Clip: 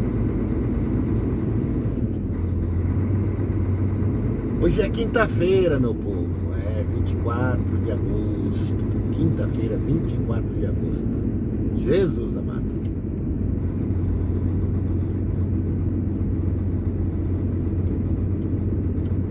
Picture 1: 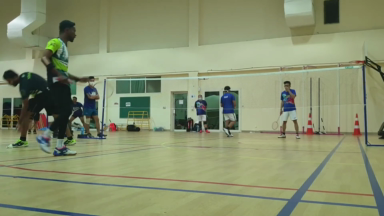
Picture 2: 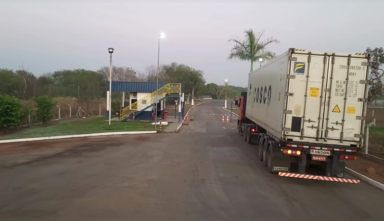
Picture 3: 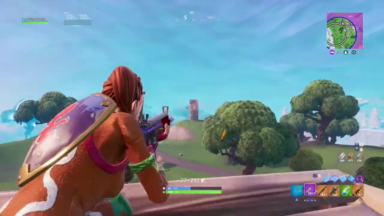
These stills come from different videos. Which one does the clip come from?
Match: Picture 2